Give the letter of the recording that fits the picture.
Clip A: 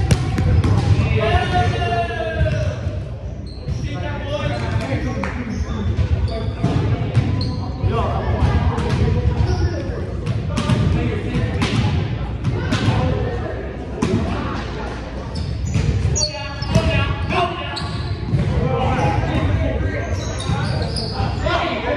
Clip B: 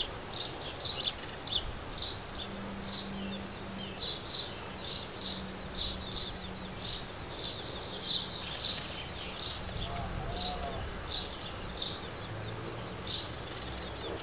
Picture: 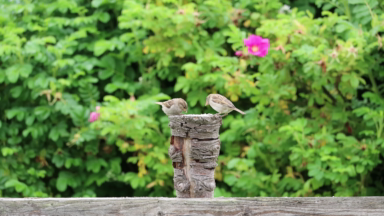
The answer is B